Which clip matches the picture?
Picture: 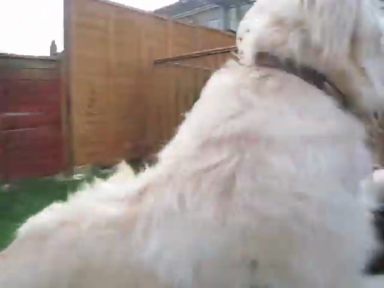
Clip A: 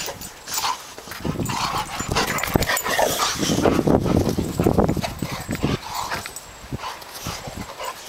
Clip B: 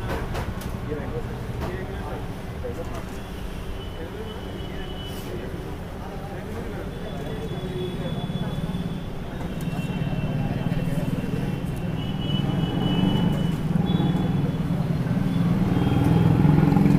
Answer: A